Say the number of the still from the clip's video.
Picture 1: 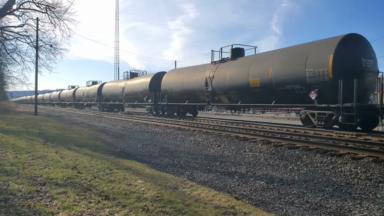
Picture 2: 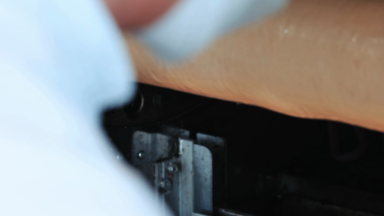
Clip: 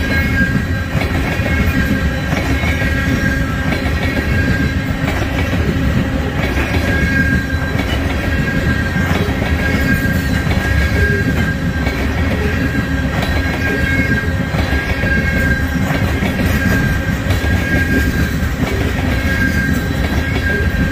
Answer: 1